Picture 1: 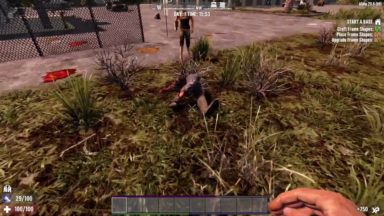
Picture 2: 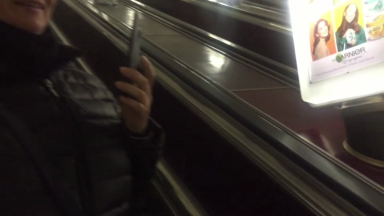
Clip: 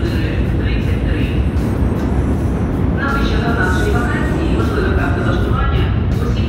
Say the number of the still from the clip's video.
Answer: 2